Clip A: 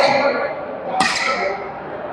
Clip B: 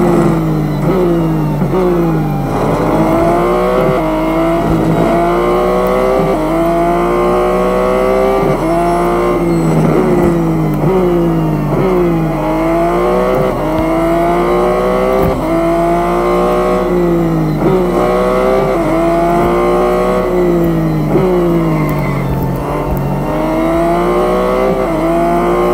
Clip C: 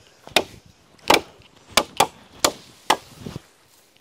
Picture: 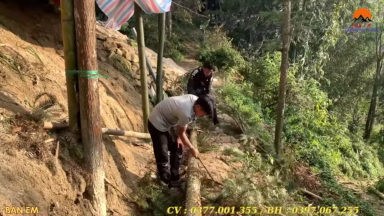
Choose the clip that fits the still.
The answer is C